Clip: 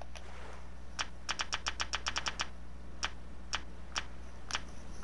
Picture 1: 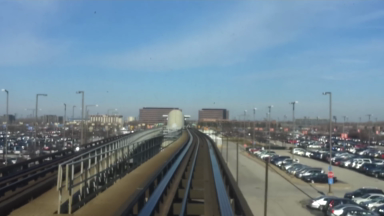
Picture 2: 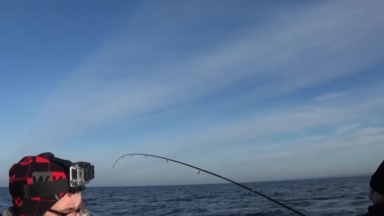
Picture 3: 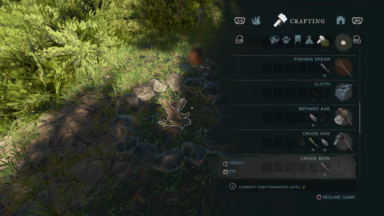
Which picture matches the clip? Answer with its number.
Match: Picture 3